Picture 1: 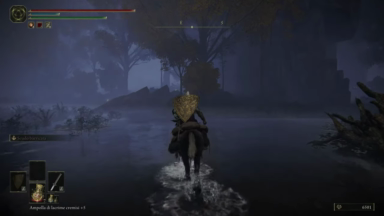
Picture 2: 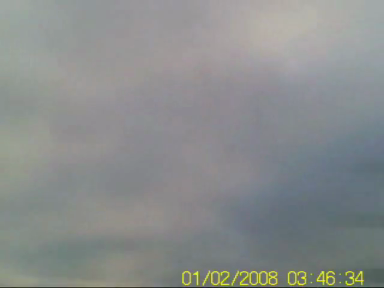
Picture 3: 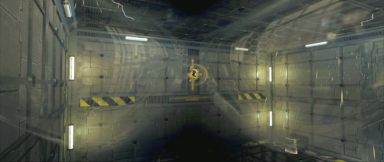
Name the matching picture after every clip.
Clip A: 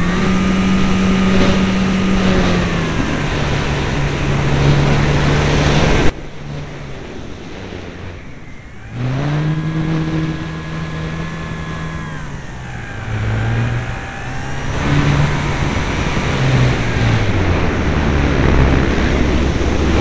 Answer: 2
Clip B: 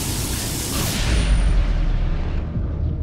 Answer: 3